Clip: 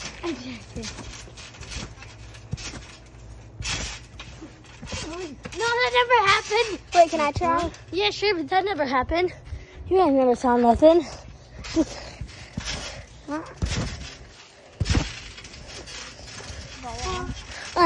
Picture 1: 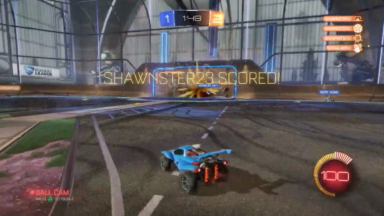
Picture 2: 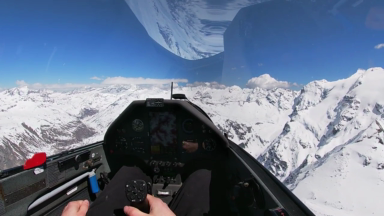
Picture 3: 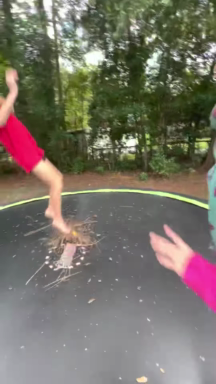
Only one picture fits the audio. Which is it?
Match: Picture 3